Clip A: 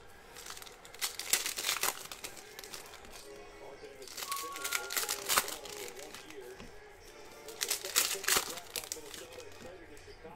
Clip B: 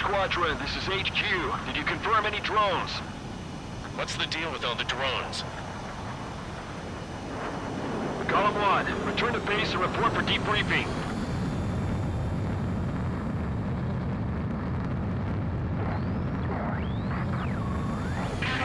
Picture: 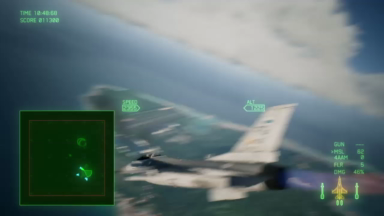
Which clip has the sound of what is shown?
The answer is B